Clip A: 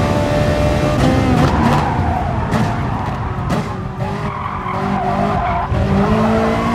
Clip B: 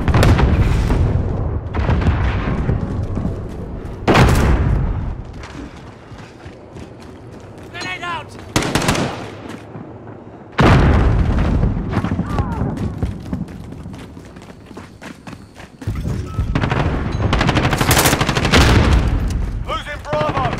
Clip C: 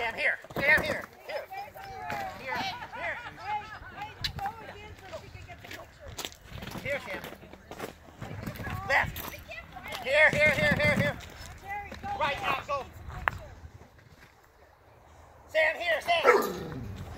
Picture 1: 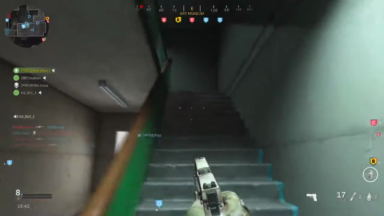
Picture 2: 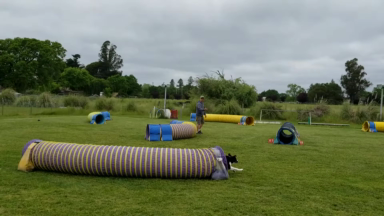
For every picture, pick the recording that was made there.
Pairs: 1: B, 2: C